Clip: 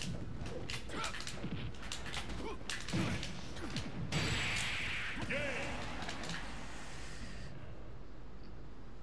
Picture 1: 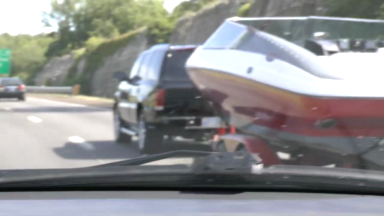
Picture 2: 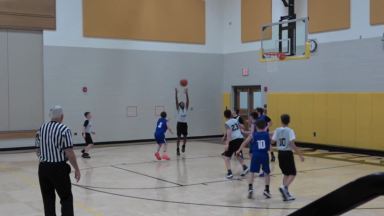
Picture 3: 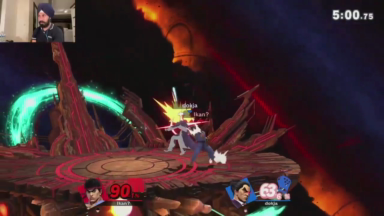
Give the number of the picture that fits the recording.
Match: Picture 3